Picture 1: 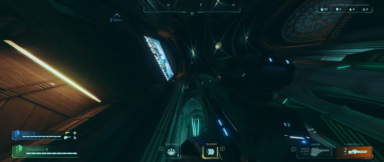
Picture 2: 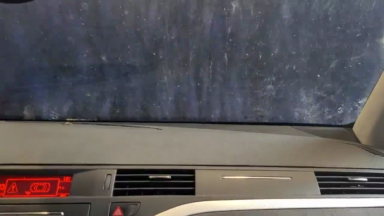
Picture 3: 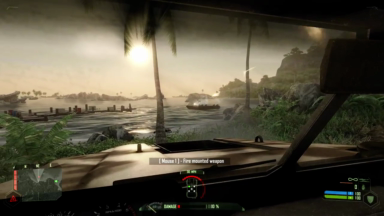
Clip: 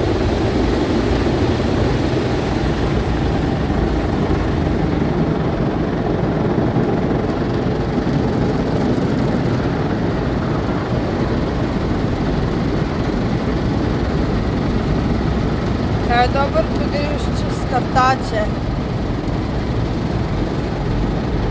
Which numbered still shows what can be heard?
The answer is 2